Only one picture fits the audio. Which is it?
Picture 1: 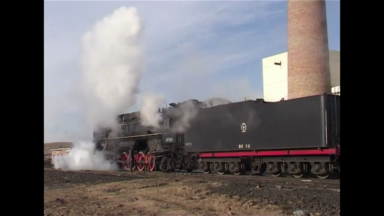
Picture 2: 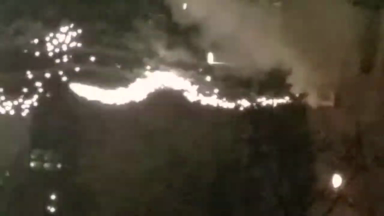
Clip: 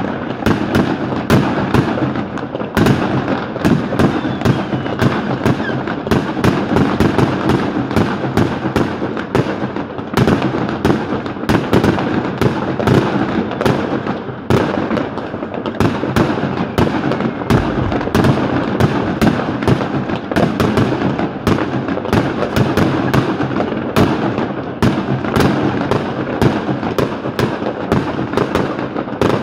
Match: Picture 2